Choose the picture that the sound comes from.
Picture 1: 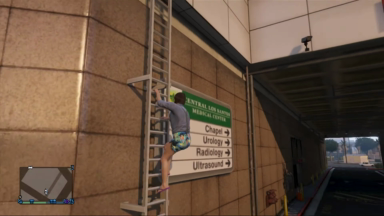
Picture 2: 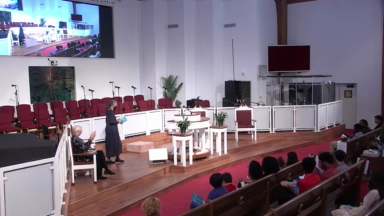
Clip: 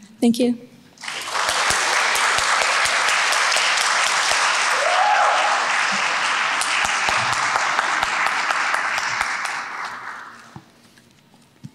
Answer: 2